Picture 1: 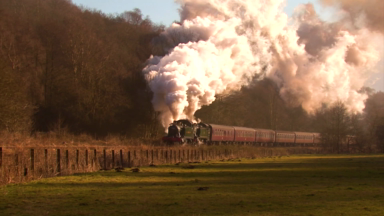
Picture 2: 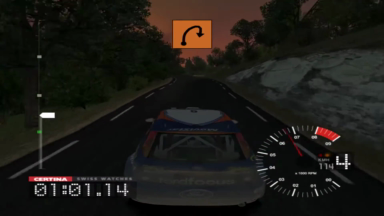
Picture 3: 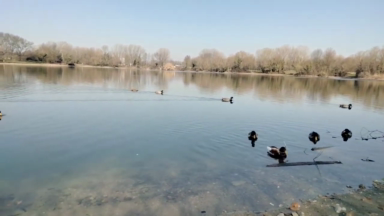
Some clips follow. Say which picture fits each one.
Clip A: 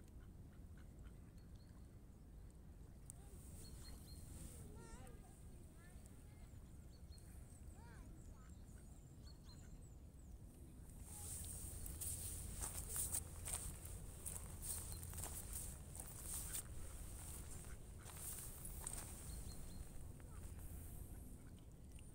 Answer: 3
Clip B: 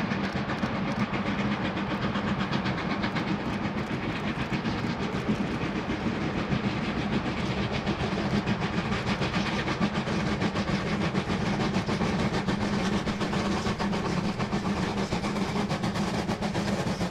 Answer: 1